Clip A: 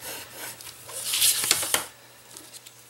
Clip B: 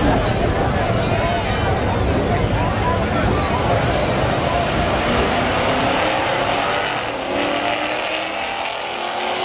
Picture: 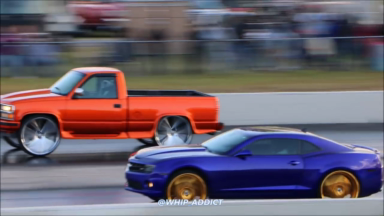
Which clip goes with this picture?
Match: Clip B